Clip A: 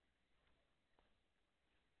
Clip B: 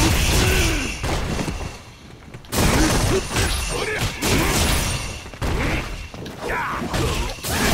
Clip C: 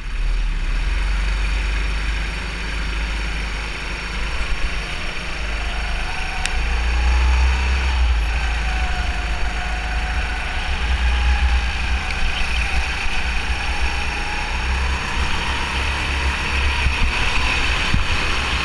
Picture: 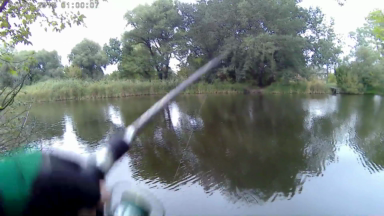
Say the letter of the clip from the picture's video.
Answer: A